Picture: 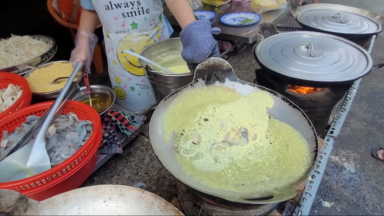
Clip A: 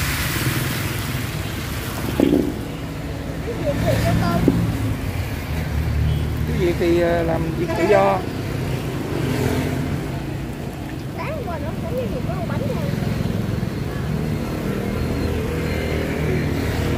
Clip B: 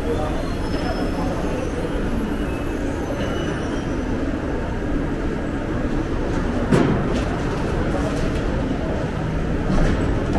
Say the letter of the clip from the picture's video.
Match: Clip A